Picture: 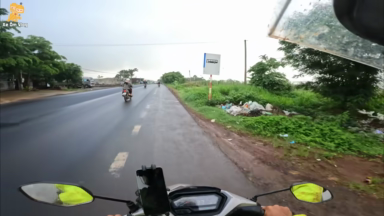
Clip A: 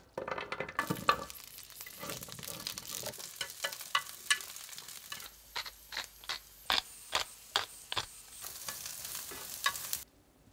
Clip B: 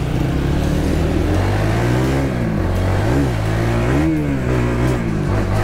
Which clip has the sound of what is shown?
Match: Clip B